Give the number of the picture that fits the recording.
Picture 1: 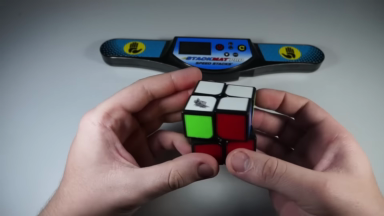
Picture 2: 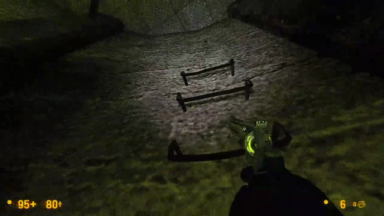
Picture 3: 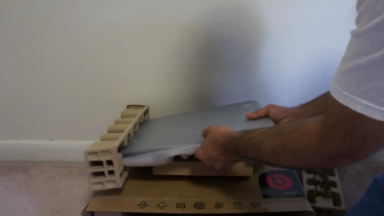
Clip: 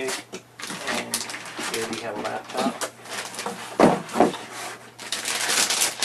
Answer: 3